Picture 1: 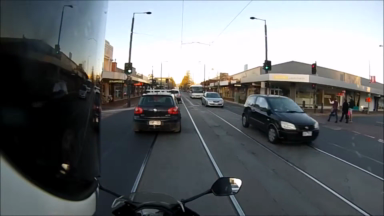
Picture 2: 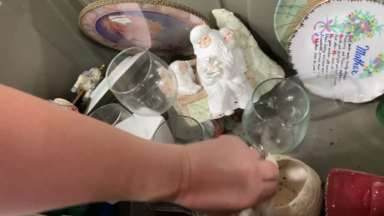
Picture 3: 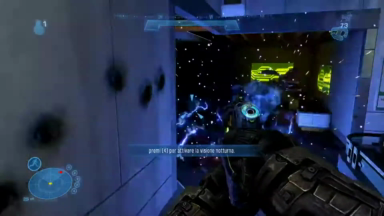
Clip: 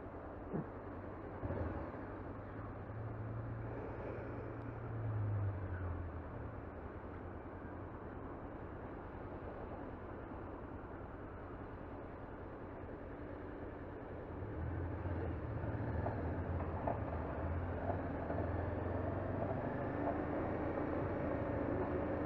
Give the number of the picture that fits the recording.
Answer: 1